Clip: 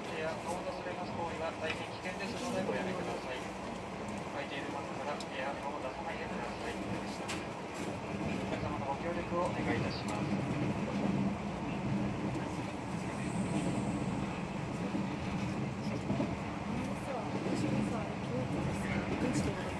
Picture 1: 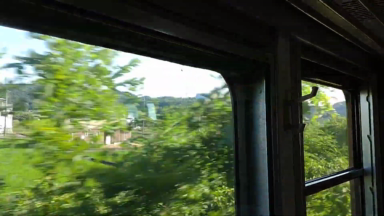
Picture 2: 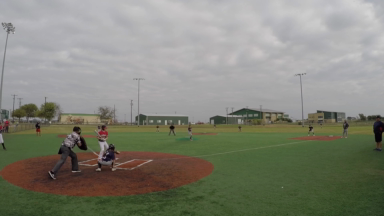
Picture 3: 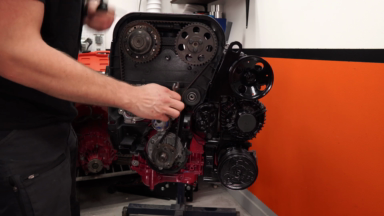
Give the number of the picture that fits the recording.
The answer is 1